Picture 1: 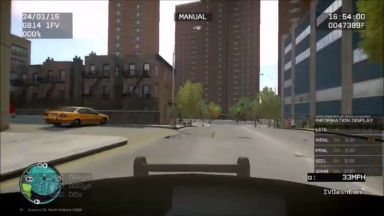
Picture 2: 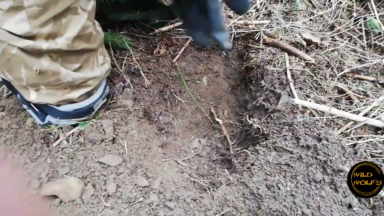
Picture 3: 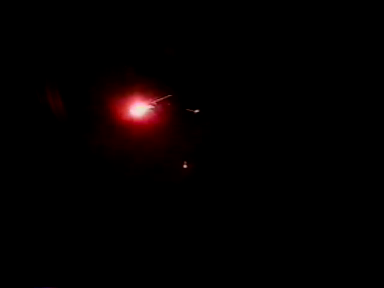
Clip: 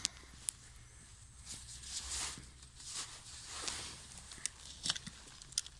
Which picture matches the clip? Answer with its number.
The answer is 2